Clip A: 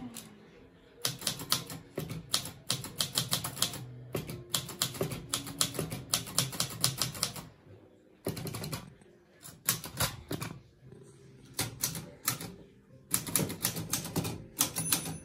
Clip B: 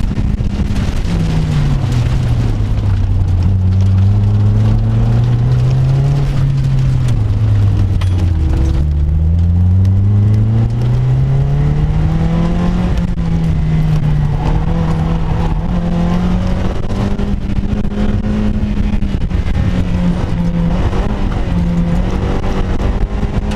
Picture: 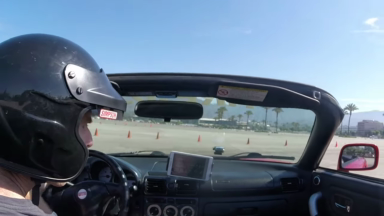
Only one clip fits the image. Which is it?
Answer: B